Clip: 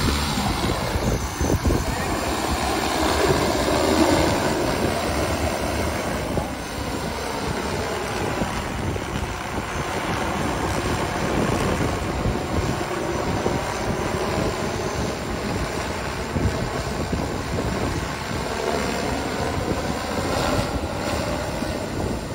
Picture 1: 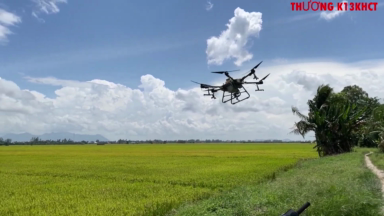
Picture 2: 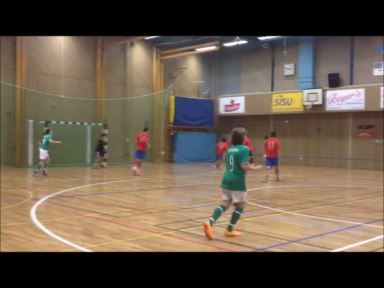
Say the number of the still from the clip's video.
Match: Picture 1